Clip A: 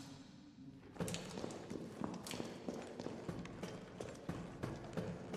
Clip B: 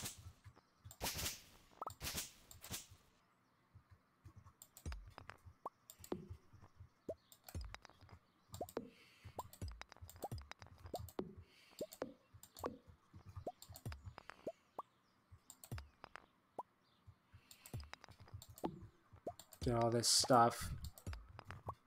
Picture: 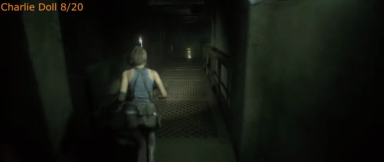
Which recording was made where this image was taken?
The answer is A